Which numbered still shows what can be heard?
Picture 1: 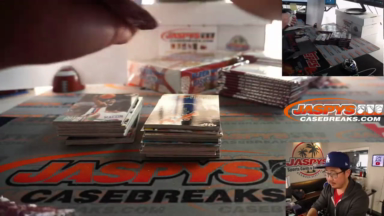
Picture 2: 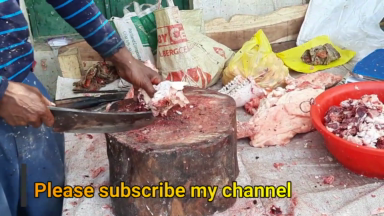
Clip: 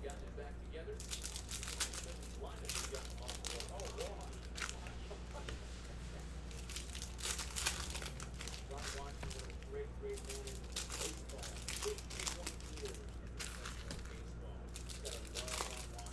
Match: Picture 1